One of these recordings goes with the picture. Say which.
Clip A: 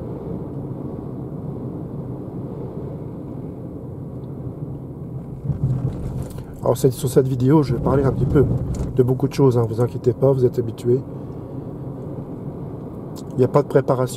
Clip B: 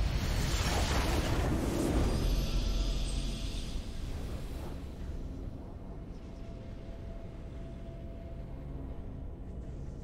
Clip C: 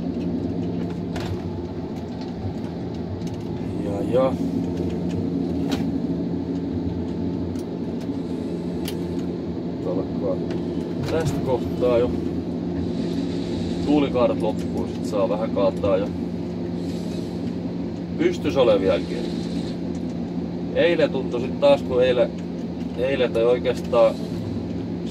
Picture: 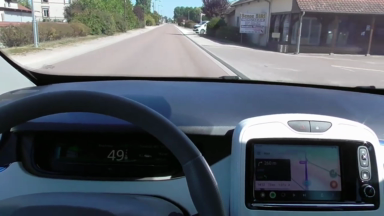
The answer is A